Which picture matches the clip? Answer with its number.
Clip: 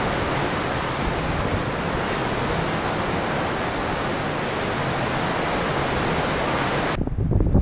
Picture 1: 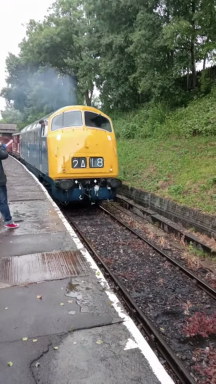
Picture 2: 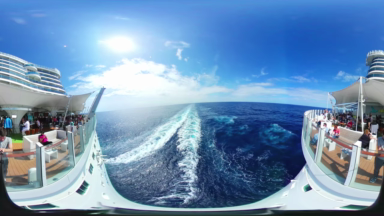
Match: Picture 2